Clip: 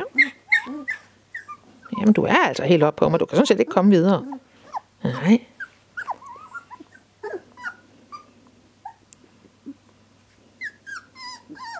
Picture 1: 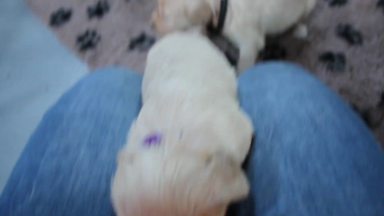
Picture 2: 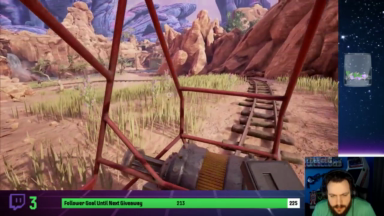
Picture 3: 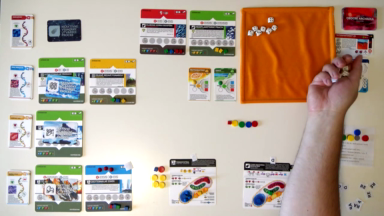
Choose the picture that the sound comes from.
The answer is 1